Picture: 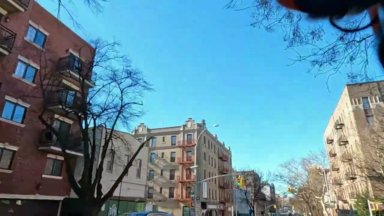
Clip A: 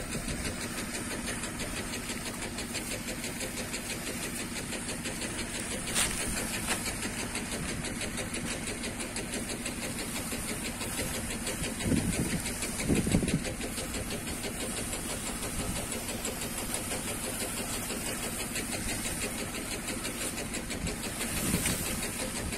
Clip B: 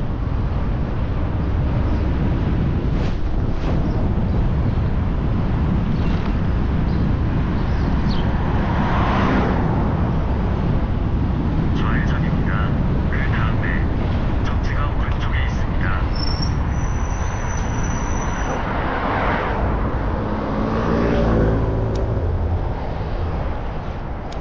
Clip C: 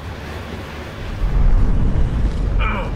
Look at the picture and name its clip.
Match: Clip B